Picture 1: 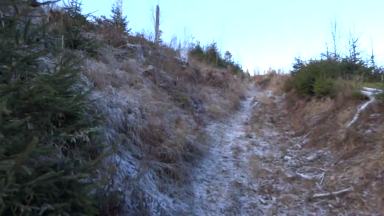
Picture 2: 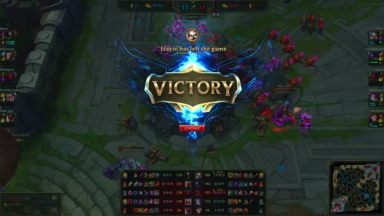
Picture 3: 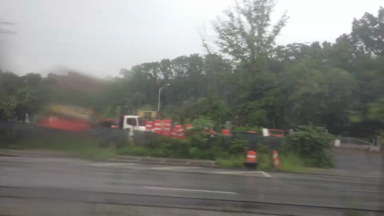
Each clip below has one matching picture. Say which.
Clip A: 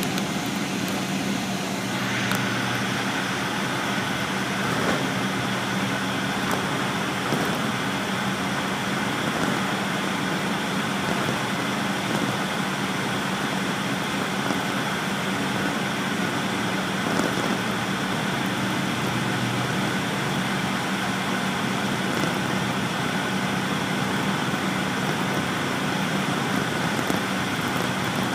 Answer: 3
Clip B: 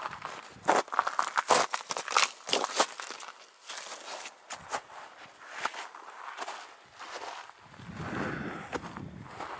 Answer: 1